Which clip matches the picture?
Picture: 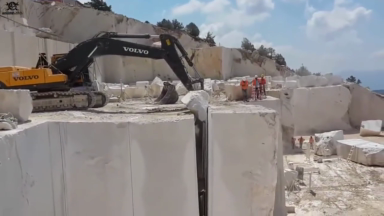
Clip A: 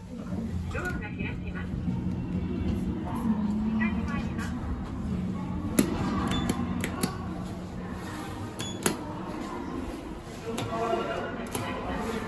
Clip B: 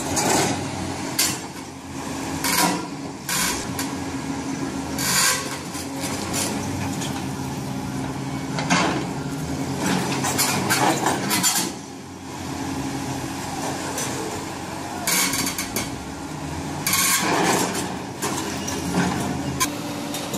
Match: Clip B